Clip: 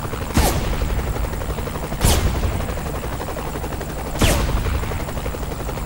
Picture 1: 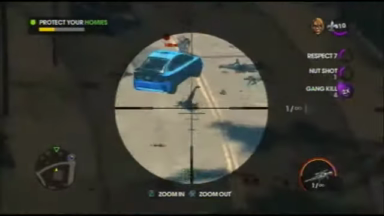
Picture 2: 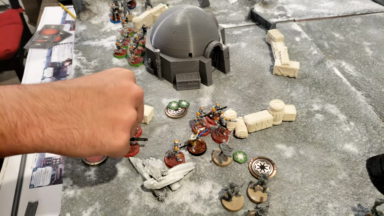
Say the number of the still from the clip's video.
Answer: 1